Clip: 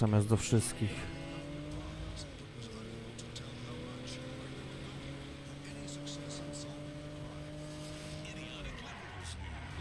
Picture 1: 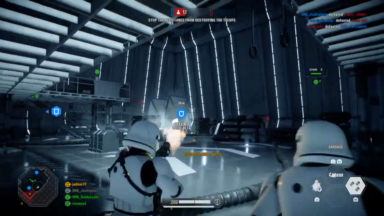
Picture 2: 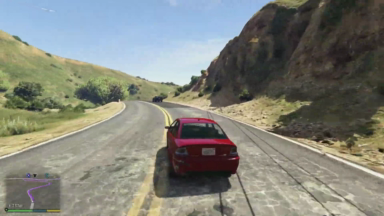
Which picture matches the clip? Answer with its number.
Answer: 2